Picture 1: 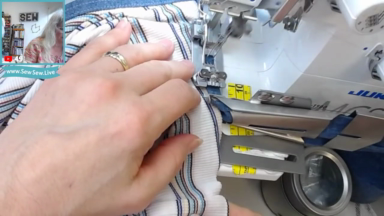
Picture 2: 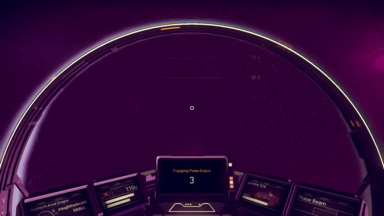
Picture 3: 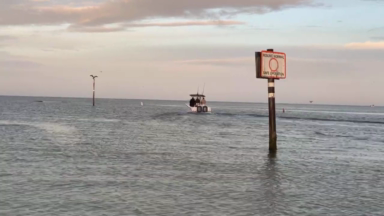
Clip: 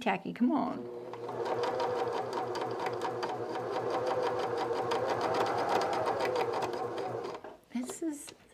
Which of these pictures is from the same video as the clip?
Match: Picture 1